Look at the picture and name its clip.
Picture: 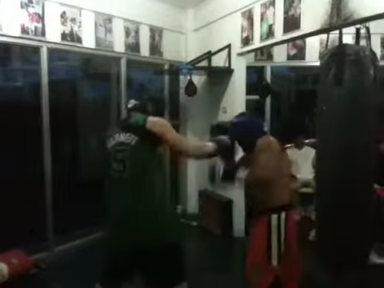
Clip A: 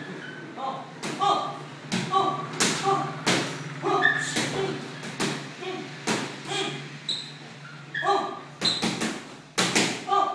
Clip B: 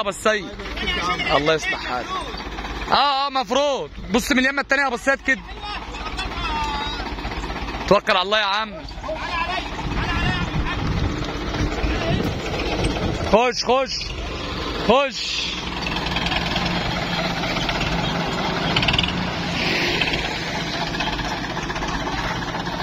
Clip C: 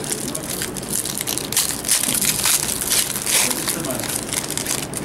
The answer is A